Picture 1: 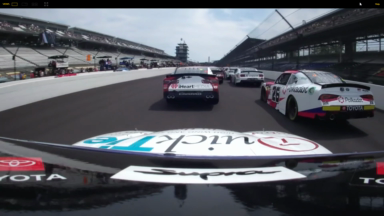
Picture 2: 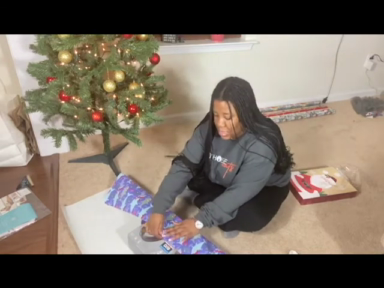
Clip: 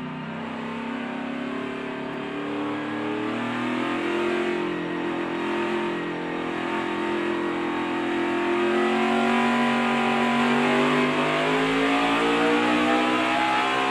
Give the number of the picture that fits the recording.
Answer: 1